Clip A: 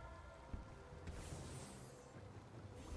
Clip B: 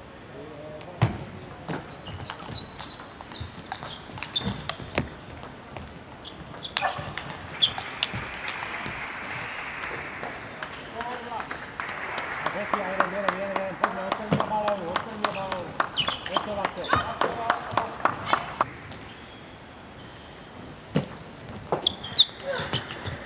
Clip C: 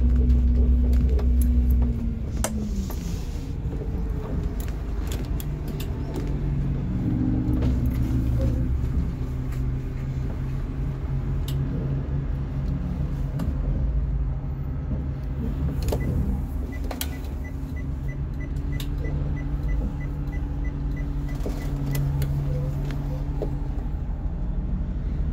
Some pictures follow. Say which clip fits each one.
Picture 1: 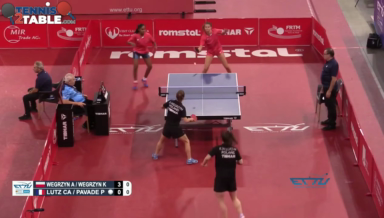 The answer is B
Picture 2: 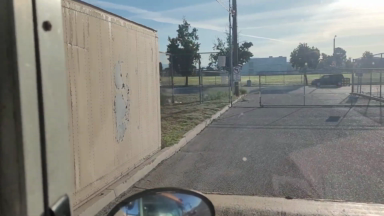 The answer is C